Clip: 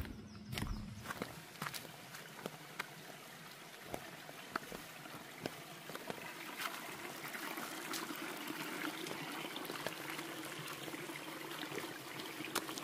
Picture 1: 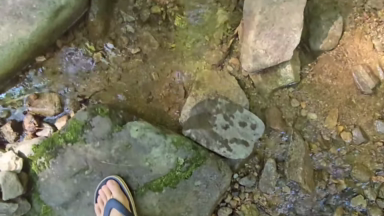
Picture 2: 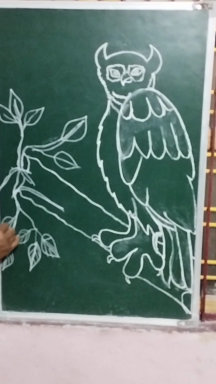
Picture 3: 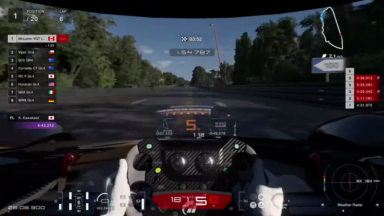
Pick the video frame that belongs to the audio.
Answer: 1